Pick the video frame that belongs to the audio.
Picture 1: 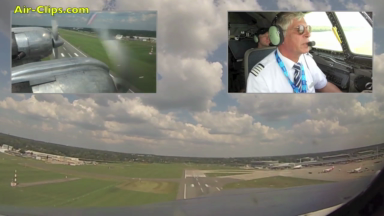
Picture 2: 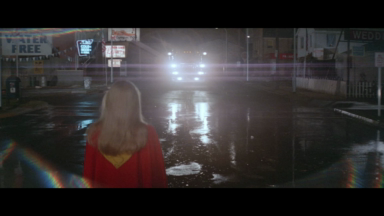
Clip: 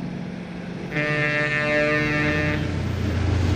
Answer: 2